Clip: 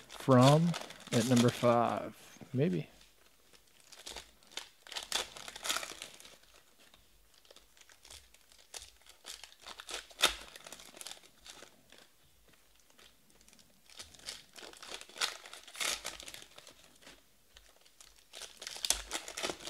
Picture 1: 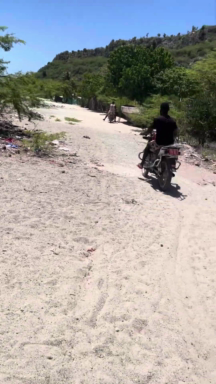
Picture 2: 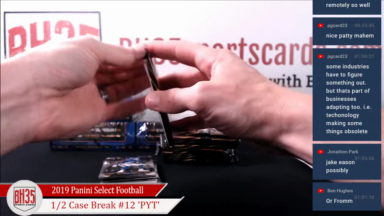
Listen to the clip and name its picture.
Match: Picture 2